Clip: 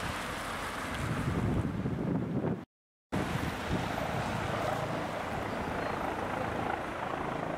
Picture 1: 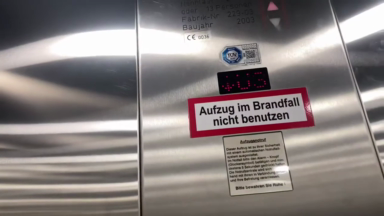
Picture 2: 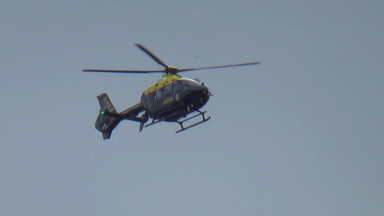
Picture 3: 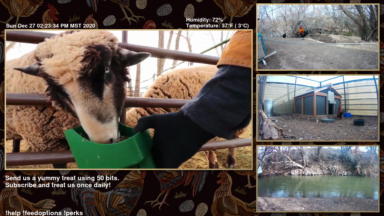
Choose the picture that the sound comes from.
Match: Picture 2